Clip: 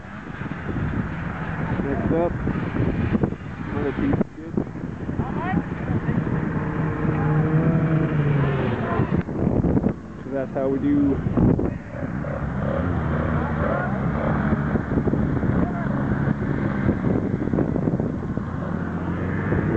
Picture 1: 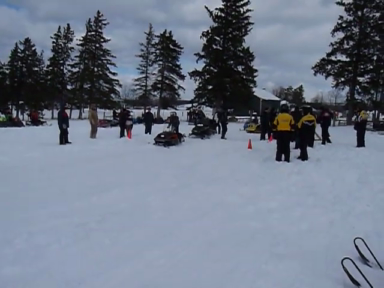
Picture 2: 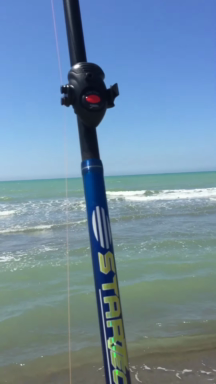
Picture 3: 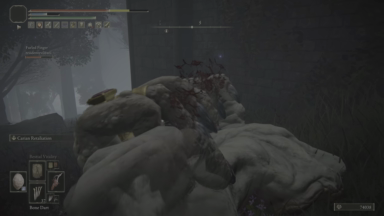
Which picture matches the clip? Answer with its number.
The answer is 1